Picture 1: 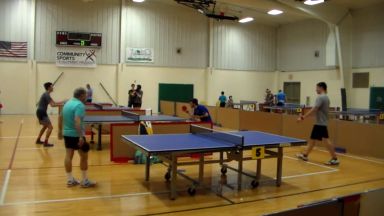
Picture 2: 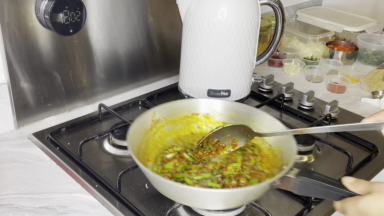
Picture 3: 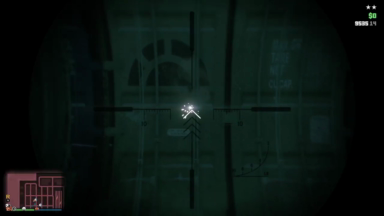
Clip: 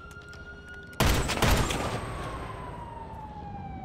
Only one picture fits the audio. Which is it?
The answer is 3